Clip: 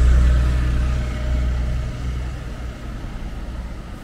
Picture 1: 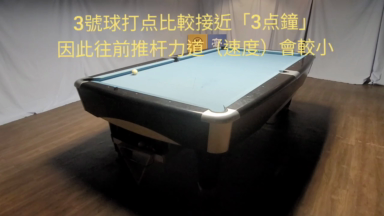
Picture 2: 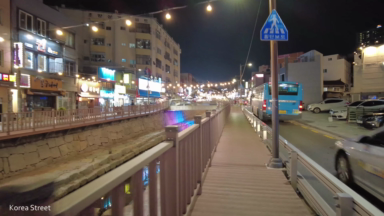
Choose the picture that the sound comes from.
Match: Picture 2